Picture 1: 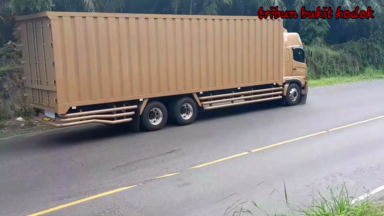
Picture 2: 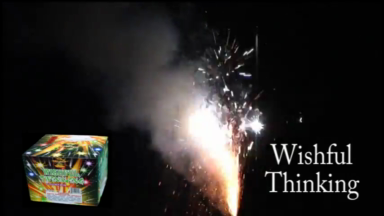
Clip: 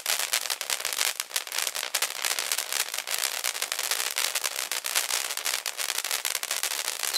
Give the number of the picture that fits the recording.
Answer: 2